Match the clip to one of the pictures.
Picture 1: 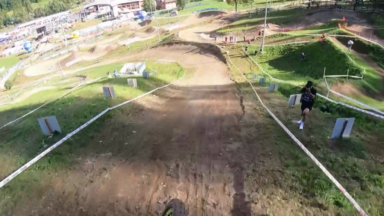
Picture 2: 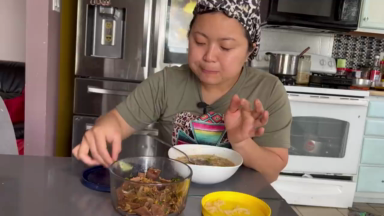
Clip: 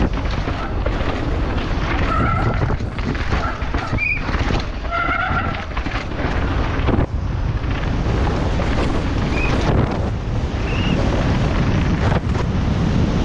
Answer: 1